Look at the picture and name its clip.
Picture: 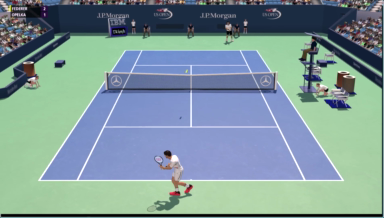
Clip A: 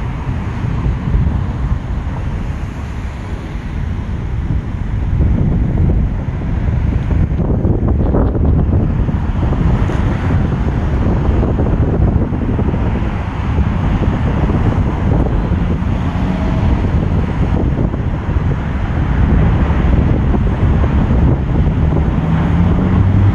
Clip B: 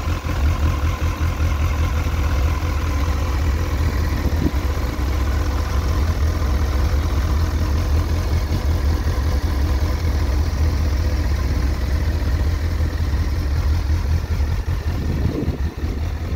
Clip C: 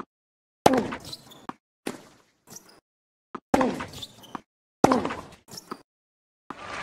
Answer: C